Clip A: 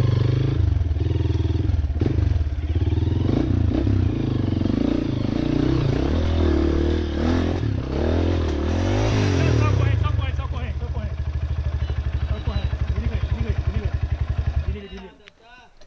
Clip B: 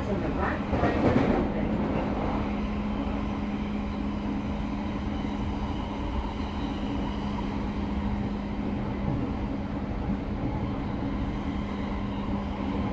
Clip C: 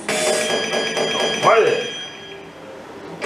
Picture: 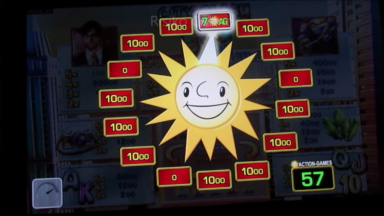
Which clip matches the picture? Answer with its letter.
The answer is C